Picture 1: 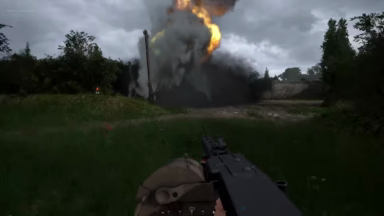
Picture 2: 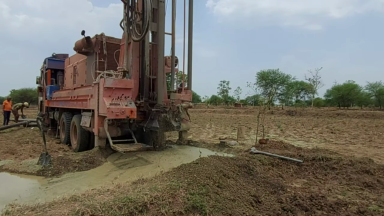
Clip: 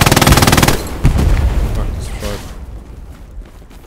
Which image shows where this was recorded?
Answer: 1